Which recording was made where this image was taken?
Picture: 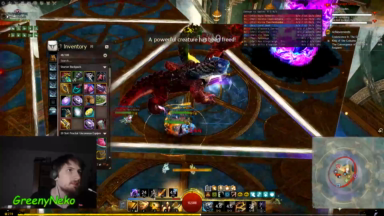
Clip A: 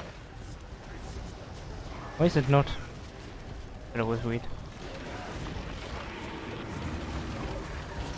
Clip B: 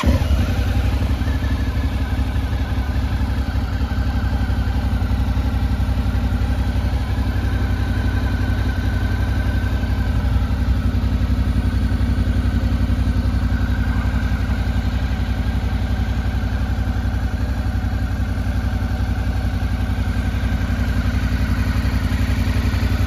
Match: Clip A